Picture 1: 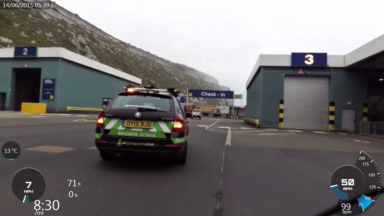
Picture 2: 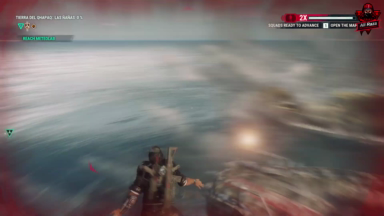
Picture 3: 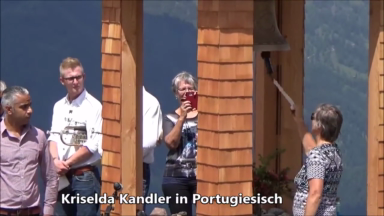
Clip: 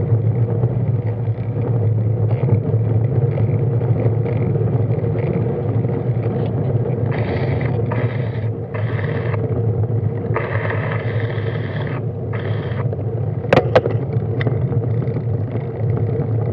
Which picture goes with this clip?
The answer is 1